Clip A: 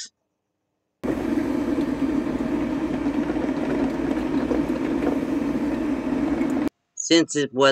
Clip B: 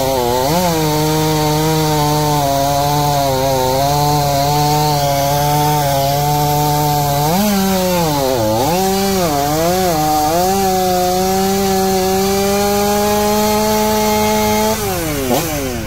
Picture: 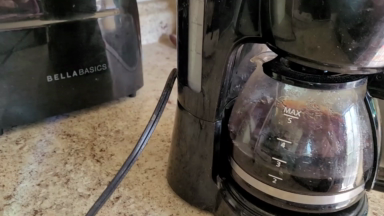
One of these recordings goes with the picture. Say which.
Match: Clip A